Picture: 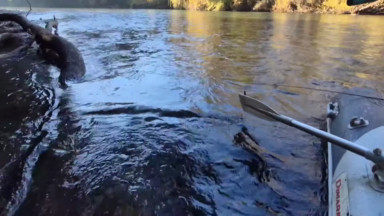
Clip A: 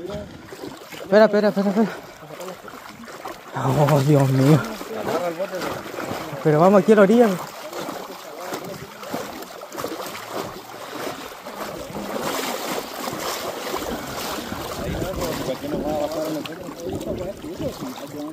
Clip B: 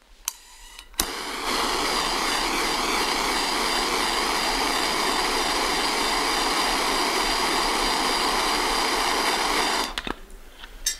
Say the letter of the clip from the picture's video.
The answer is A